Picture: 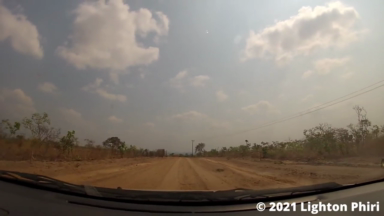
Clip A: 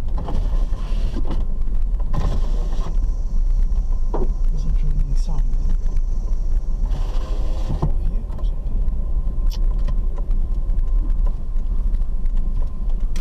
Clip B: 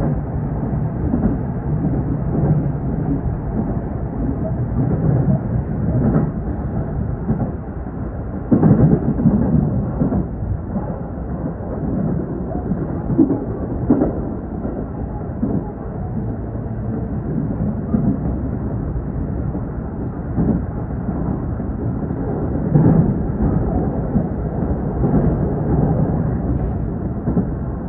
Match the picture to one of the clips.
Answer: A